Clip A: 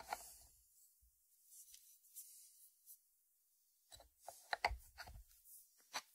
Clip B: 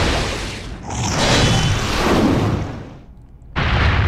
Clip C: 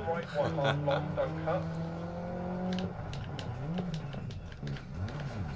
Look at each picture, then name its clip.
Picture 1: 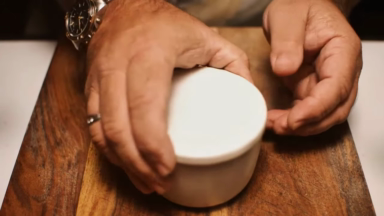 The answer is A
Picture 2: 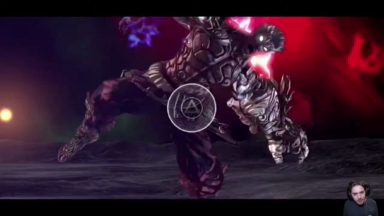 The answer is B